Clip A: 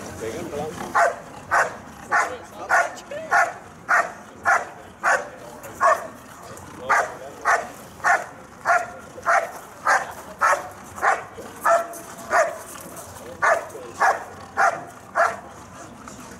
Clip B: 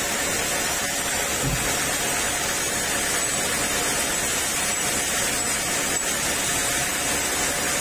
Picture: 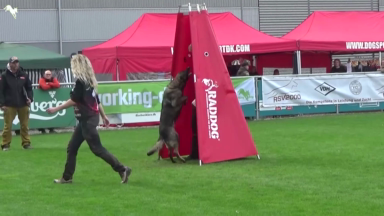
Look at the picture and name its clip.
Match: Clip A